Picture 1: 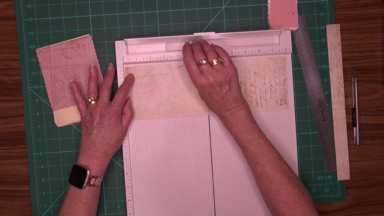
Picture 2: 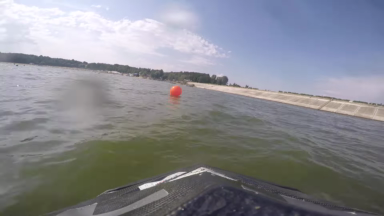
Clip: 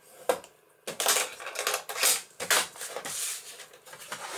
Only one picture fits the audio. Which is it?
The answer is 1